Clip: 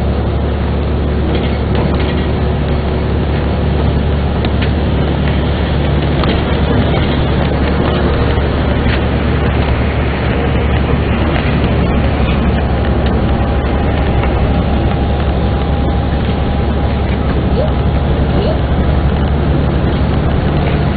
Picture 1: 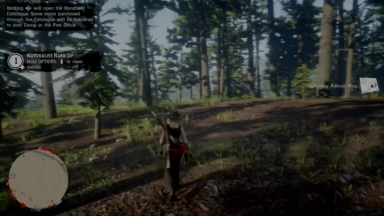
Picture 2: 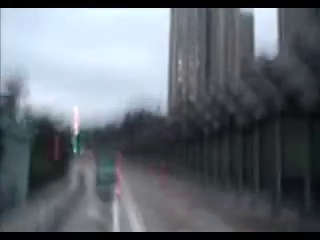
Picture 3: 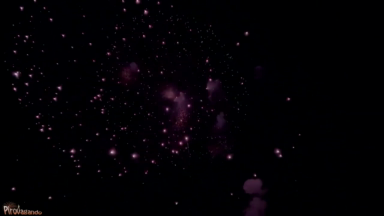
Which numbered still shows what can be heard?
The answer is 2